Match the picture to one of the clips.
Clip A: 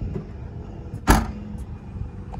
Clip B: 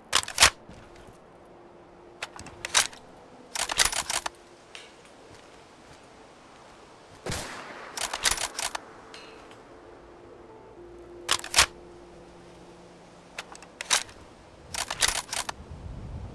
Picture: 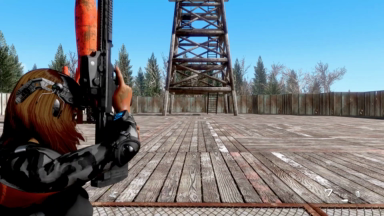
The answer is B